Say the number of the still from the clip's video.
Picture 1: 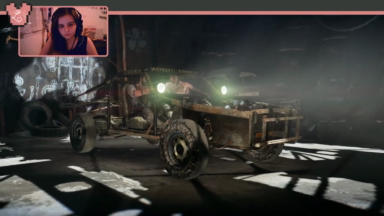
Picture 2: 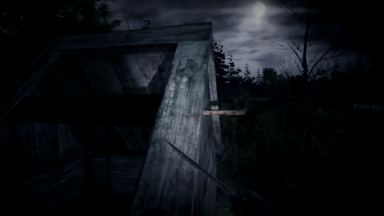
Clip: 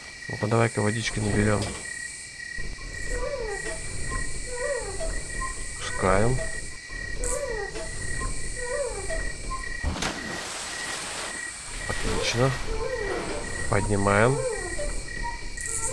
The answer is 2